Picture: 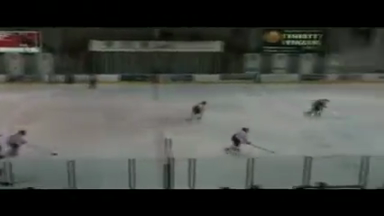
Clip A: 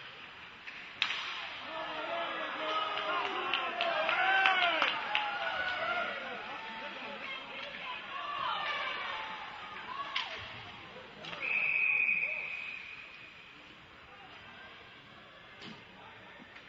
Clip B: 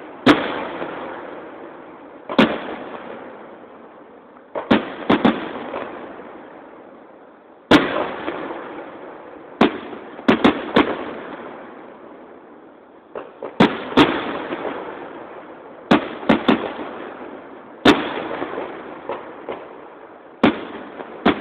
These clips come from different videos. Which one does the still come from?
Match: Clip A